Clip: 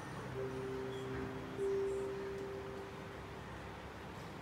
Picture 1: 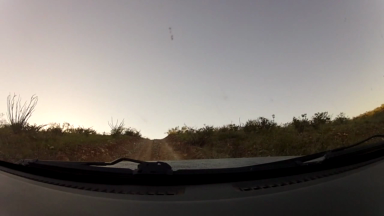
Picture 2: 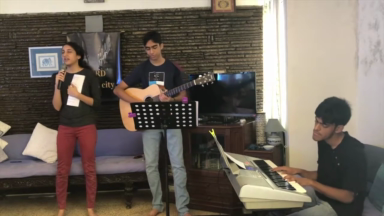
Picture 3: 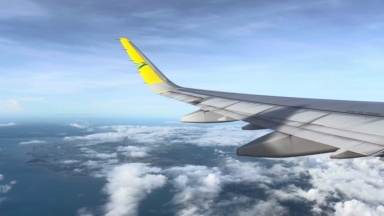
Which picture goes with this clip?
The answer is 2